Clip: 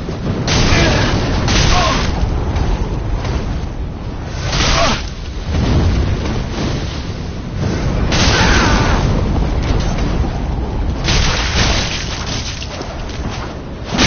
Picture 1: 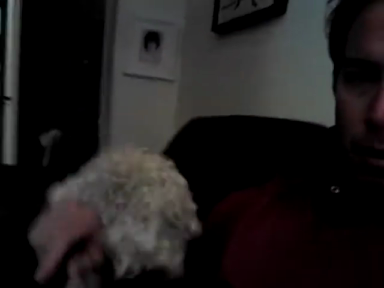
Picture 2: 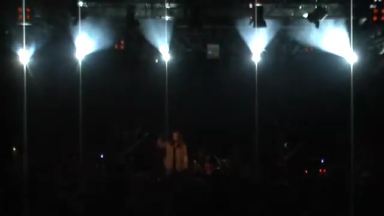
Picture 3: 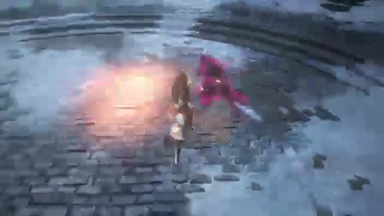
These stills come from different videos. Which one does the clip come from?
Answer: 3